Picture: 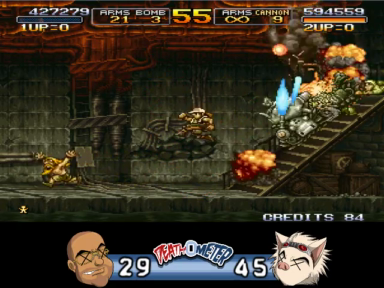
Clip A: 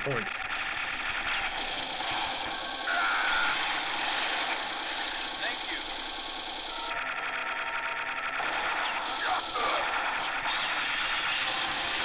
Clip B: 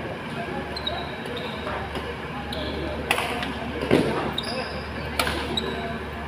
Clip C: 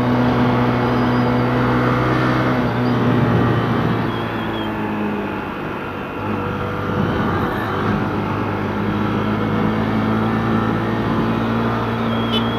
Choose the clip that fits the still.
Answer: A